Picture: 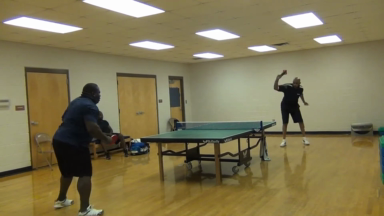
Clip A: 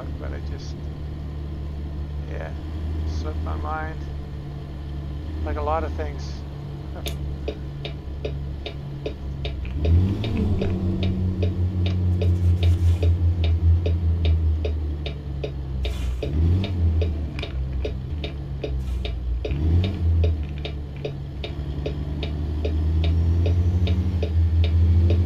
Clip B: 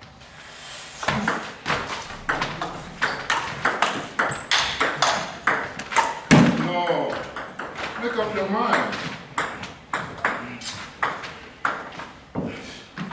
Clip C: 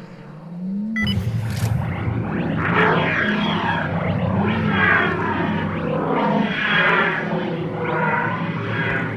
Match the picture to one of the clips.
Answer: B